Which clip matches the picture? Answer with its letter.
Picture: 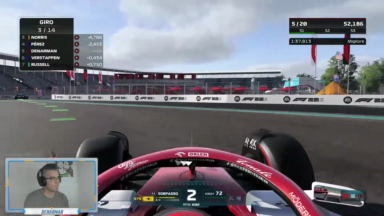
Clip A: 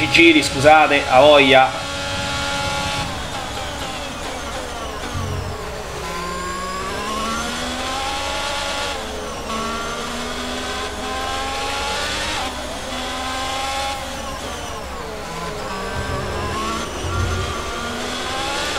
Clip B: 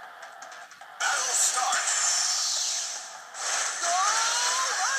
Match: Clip A